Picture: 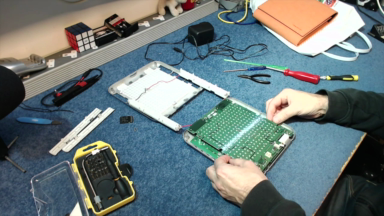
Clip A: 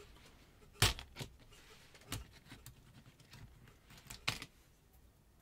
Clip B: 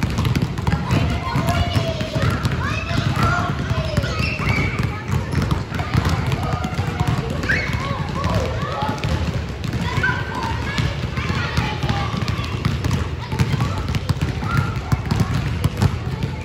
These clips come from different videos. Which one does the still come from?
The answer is A